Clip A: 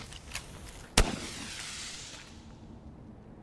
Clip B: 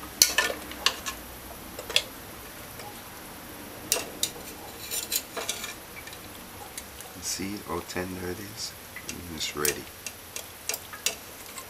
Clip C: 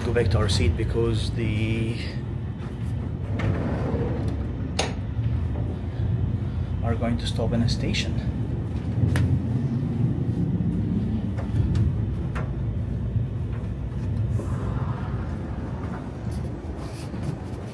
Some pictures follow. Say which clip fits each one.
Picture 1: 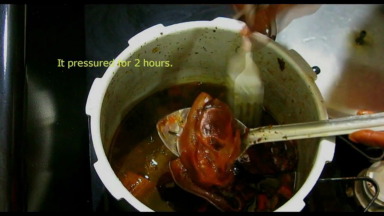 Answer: B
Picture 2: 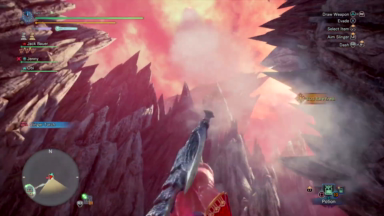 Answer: A